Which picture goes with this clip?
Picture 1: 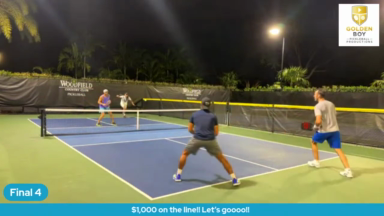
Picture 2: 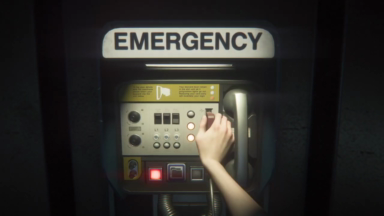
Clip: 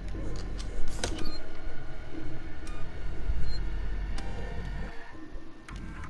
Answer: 2